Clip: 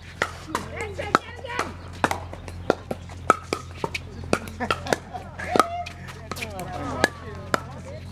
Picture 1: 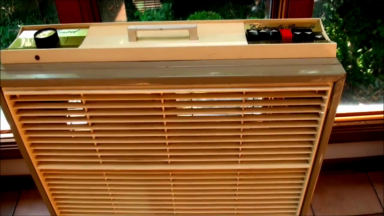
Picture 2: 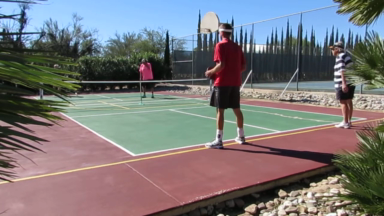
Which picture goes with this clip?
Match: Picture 2